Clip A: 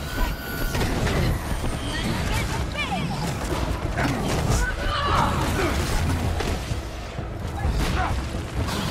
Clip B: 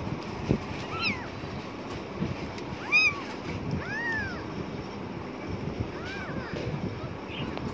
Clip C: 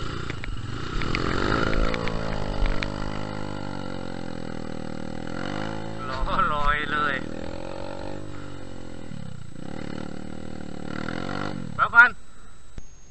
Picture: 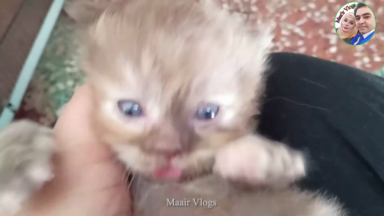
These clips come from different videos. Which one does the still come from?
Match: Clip B